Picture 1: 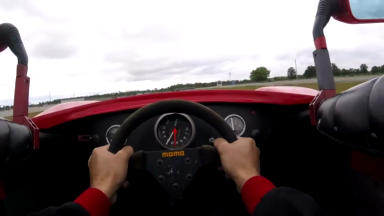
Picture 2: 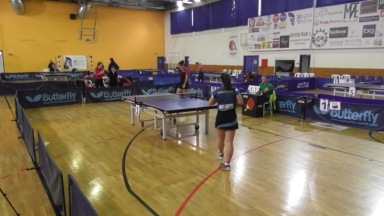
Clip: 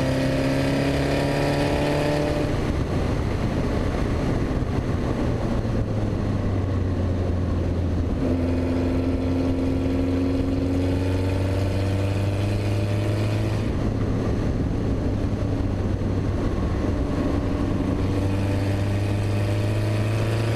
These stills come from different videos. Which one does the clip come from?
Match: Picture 1